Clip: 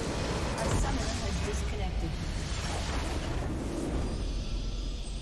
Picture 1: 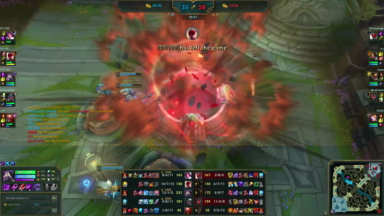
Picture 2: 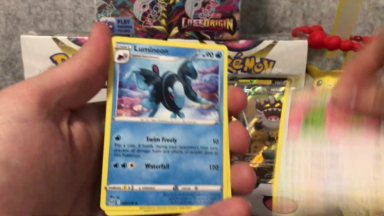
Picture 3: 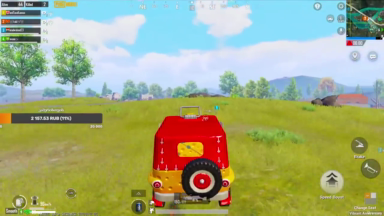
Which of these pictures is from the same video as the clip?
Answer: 1